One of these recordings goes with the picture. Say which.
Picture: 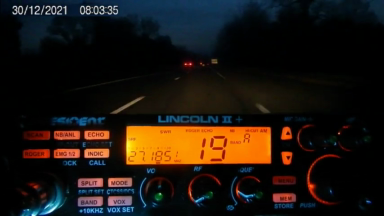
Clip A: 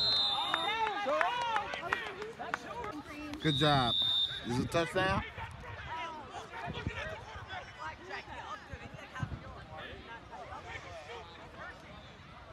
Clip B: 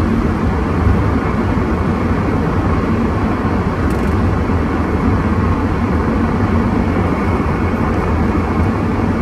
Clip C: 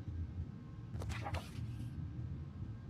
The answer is B